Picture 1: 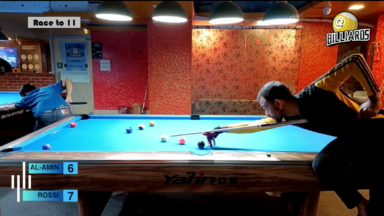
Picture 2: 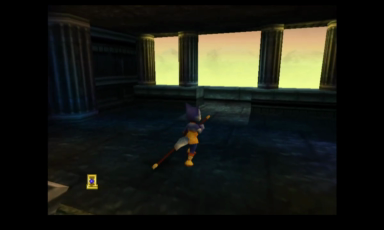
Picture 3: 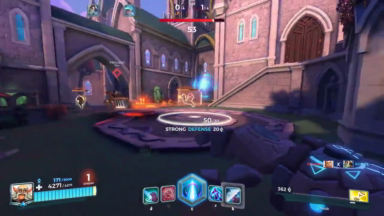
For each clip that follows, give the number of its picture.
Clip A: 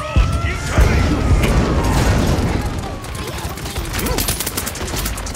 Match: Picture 3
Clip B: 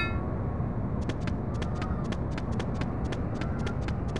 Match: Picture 2